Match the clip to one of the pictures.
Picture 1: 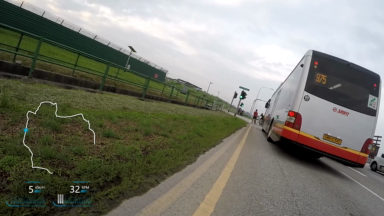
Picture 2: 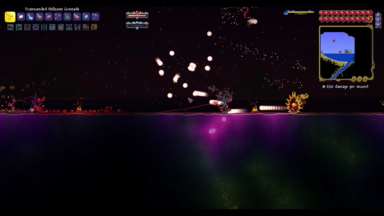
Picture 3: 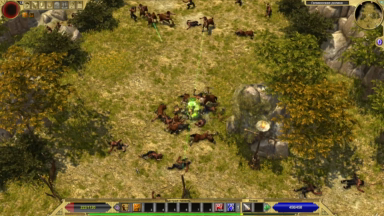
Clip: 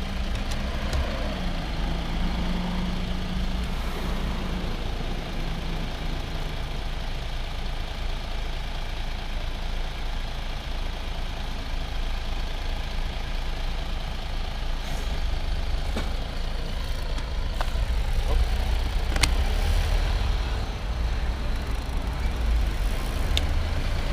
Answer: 1